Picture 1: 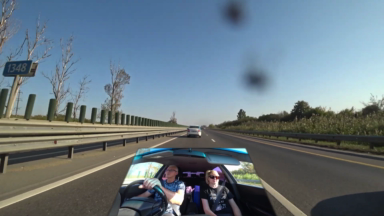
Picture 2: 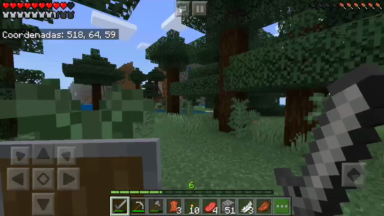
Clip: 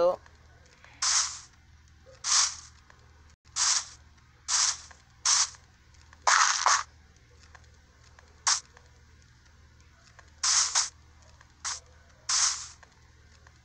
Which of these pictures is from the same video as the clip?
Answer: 2